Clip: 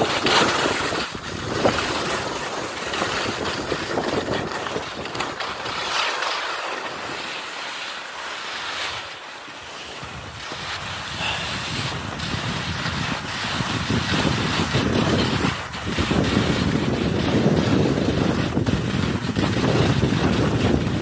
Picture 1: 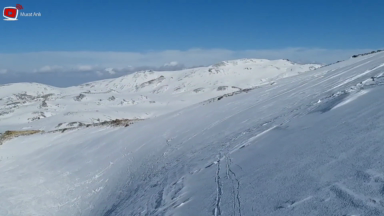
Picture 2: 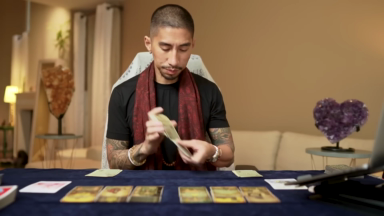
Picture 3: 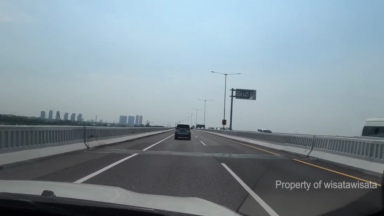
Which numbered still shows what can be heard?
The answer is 1